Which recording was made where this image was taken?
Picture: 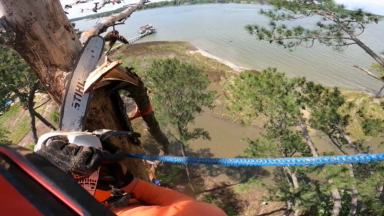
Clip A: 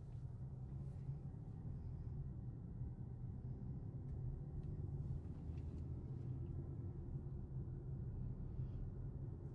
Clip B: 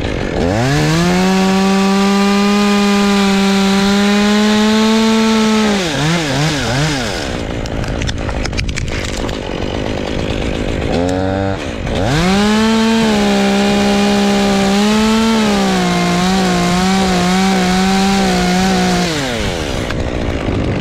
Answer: B